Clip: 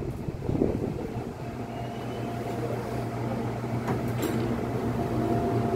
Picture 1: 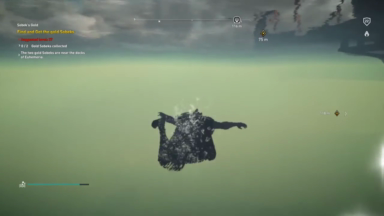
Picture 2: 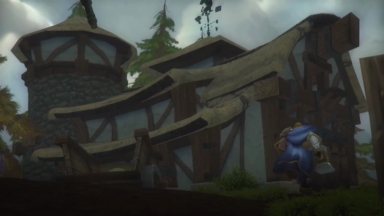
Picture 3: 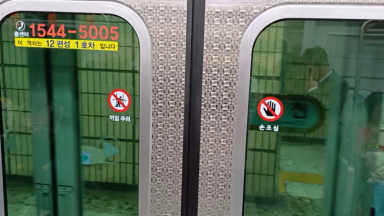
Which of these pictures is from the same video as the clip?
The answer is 3